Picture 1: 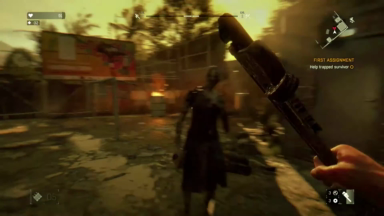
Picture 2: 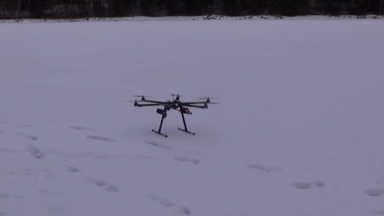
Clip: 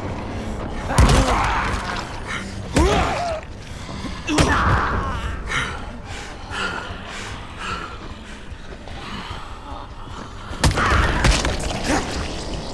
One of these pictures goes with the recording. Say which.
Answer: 1